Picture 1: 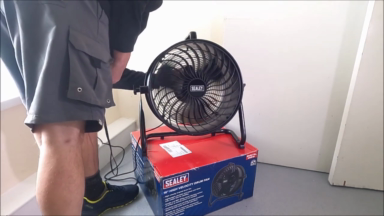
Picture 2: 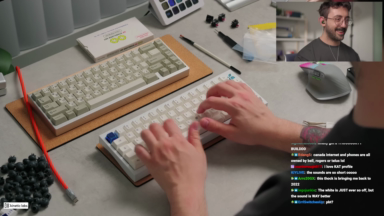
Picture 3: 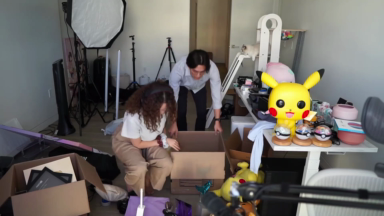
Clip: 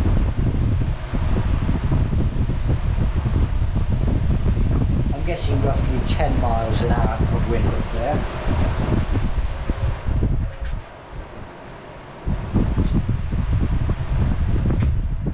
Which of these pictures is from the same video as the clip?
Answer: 1